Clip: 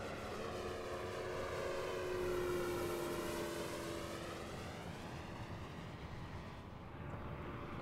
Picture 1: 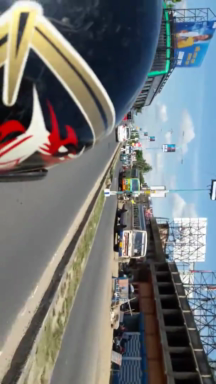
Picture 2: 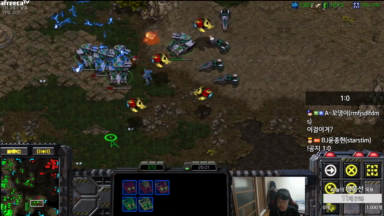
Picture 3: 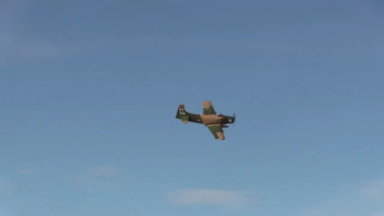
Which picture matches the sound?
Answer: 3